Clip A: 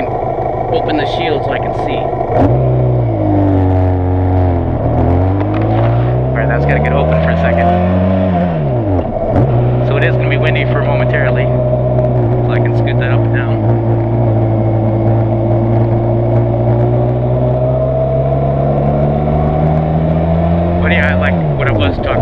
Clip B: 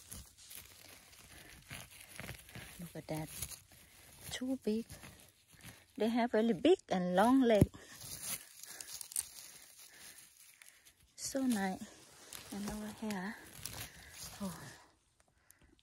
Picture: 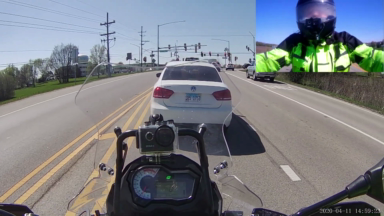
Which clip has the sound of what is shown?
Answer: A